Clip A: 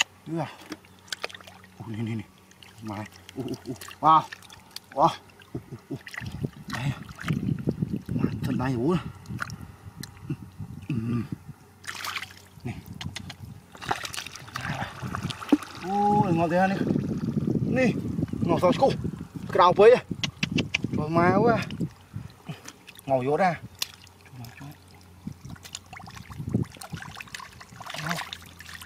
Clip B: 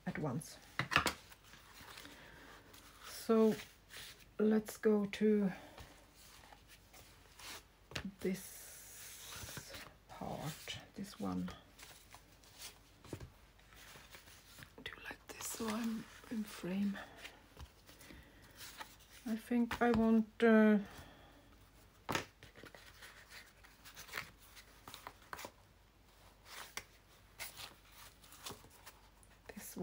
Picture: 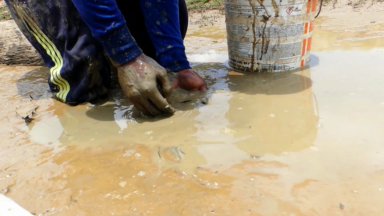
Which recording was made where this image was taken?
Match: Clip A